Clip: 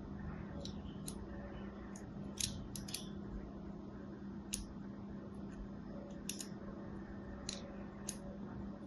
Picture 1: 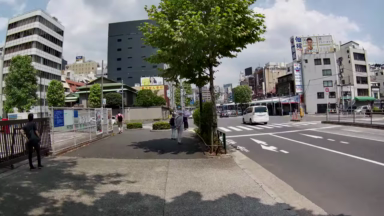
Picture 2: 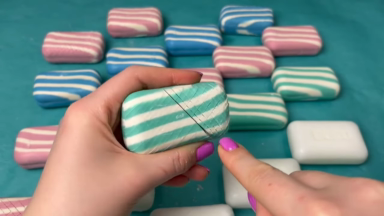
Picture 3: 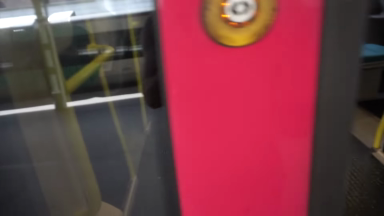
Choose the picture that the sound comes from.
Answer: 2